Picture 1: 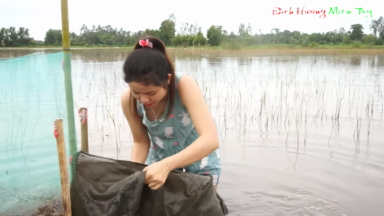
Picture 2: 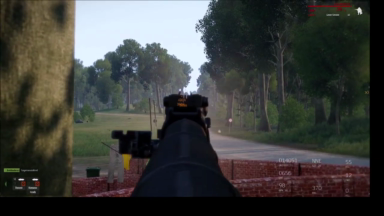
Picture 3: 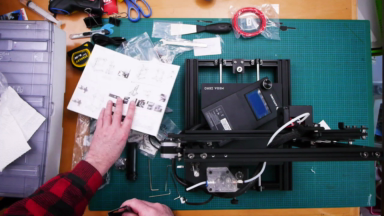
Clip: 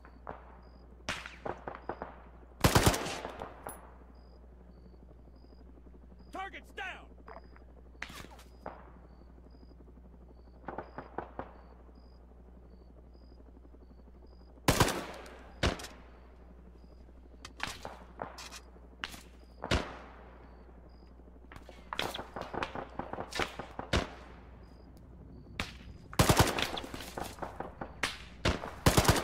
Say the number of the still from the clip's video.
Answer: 2